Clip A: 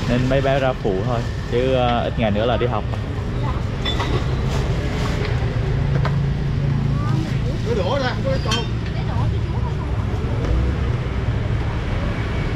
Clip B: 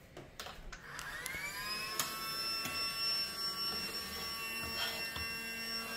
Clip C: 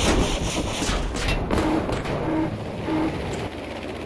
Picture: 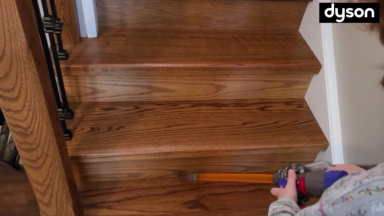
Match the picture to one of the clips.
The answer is B